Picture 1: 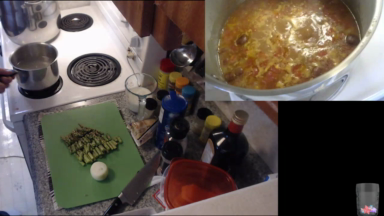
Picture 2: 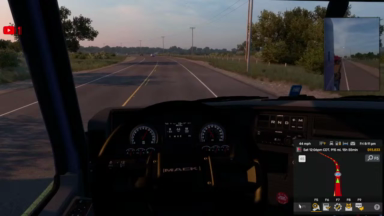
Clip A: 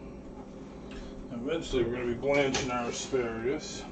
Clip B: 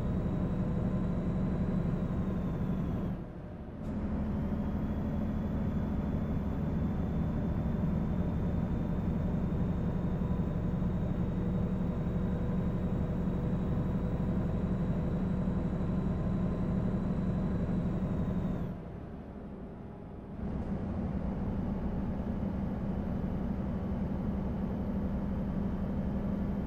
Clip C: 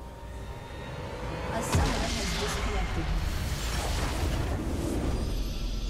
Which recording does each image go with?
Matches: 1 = A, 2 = B